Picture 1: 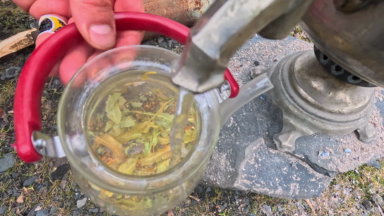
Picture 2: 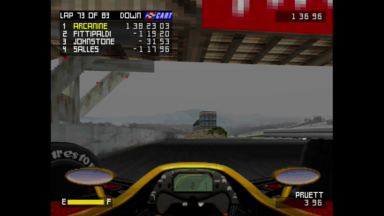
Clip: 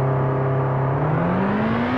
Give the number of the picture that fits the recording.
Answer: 2